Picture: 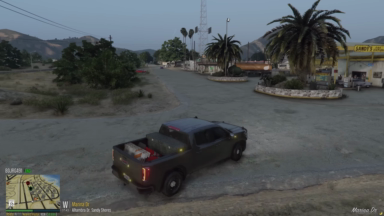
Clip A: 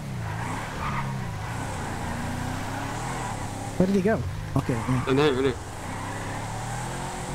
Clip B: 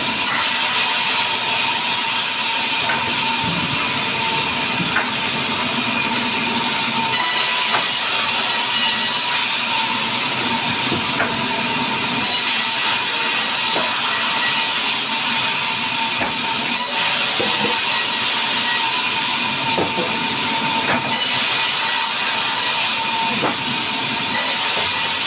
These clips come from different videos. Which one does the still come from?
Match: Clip A